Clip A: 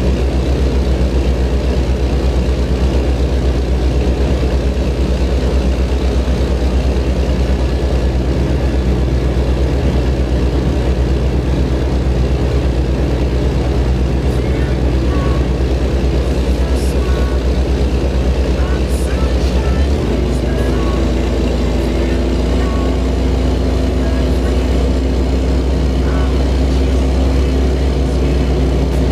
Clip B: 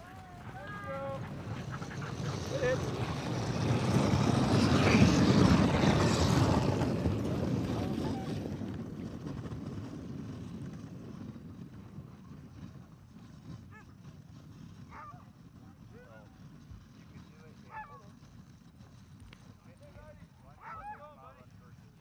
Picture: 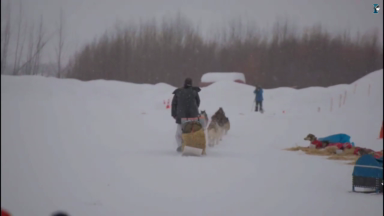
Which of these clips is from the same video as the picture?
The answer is B